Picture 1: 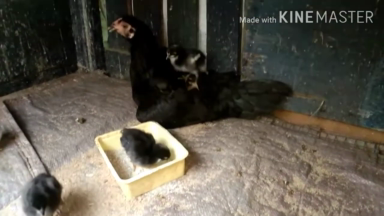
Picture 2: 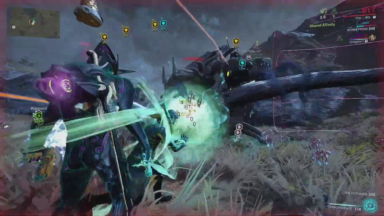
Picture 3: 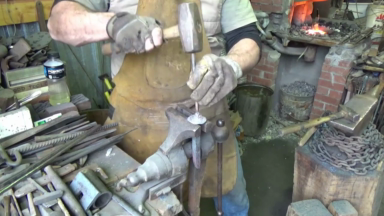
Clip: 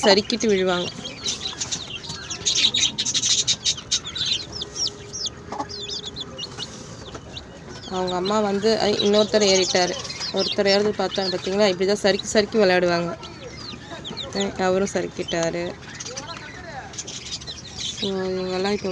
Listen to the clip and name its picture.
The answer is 1